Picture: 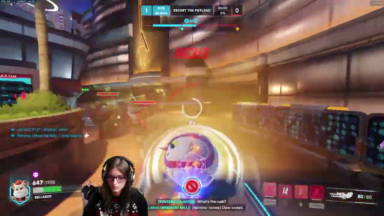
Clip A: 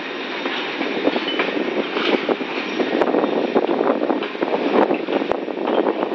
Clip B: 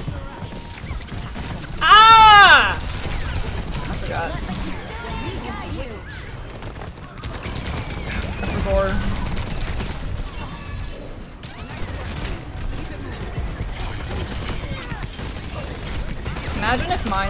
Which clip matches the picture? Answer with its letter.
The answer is B